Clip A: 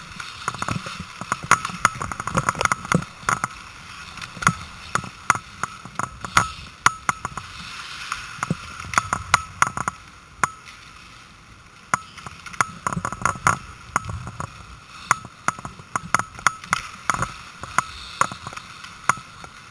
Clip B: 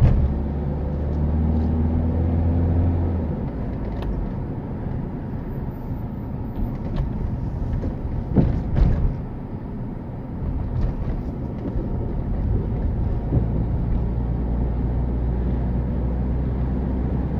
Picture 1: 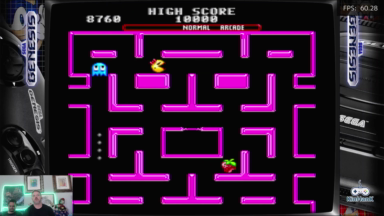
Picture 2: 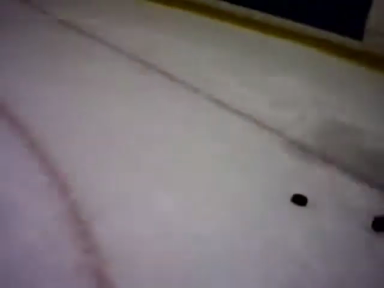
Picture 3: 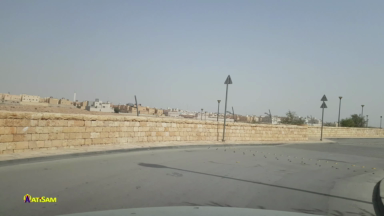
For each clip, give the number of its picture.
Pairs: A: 2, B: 3